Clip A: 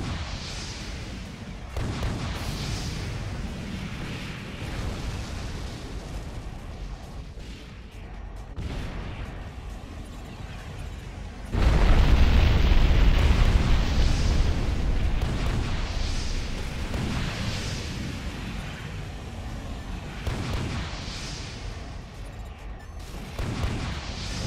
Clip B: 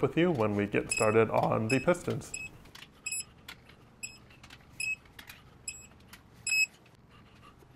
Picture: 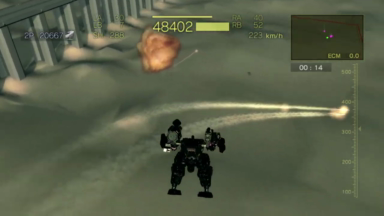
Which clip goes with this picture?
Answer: A